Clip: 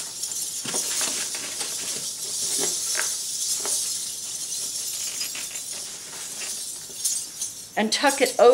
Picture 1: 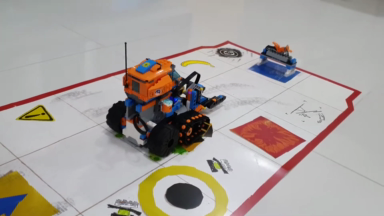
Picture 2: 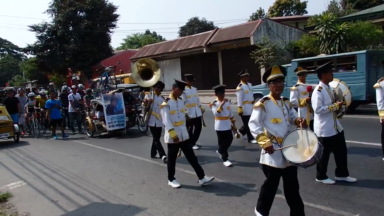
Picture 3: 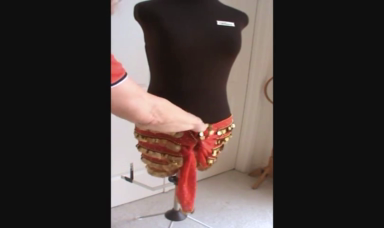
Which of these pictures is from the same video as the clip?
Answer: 3